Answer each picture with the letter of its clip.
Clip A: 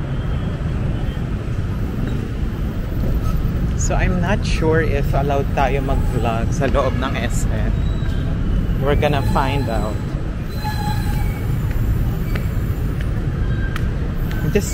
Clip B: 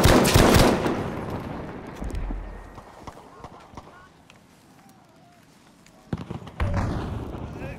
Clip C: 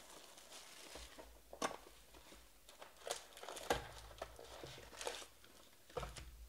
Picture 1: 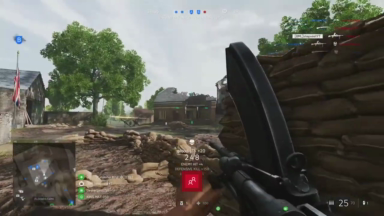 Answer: B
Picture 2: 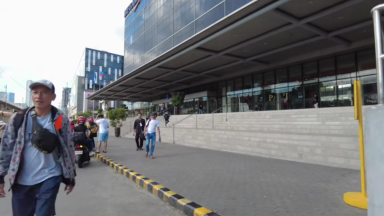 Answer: A